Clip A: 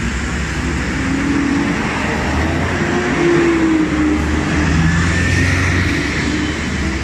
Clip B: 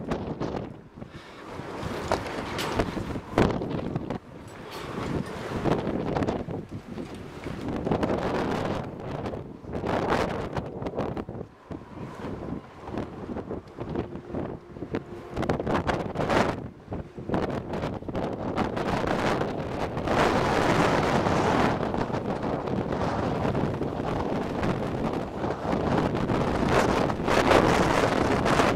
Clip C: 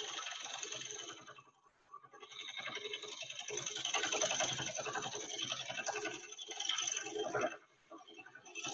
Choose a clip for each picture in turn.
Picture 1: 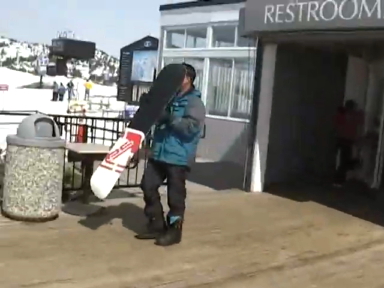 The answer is B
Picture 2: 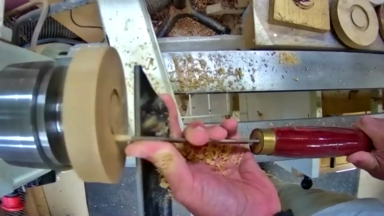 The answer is C